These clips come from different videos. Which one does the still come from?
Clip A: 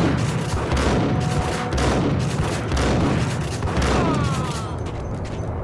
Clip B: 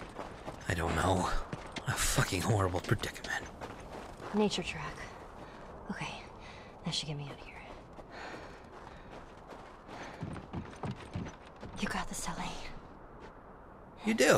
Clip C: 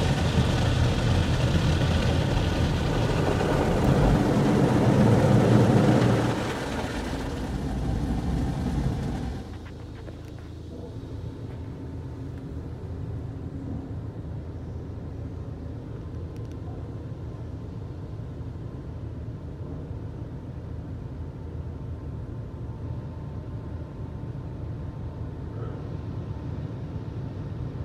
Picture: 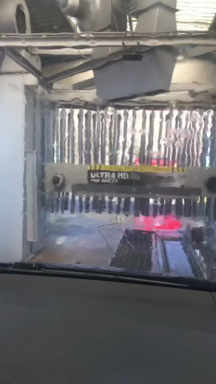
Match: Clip C